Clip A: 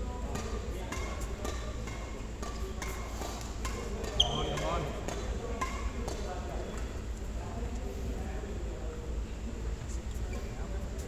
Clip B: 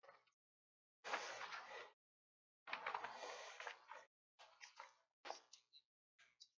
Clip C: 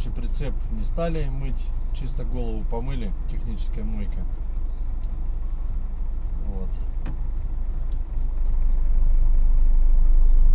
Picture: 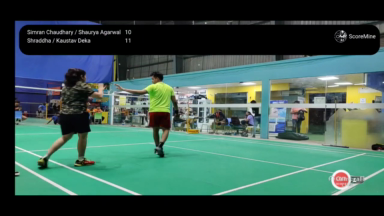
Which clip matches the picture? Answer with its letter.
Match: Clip A